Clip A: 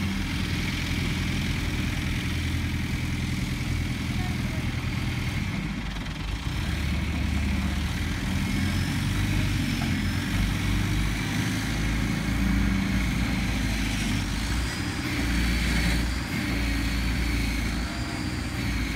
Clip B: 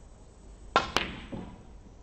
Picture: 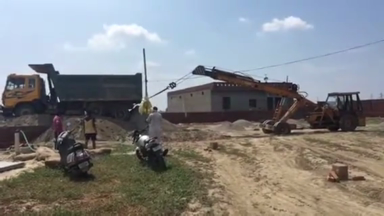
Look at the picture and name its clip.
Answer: A